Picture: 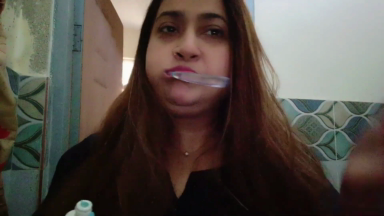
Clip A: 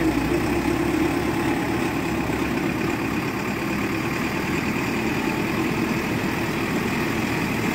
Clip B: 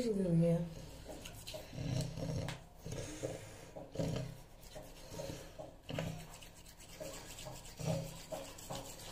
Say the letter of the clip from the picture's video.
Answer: B